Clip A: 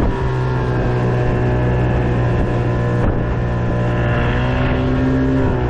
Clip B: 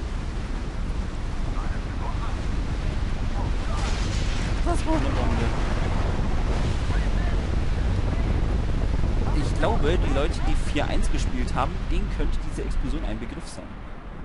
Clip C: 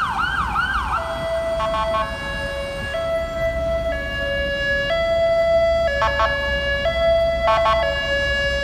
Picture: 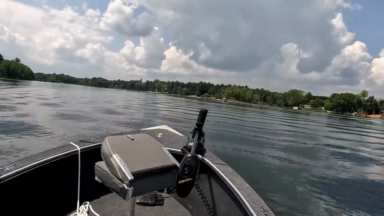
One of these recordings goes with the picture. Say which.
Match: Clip A